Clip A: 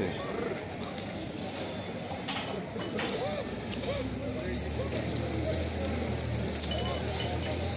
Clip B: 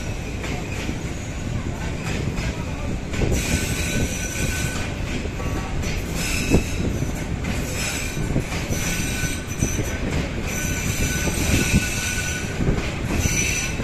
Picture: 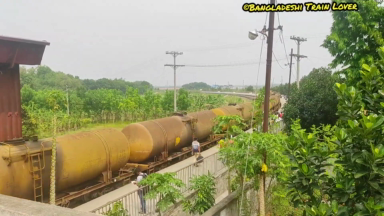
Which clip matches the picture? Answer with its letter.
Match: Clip B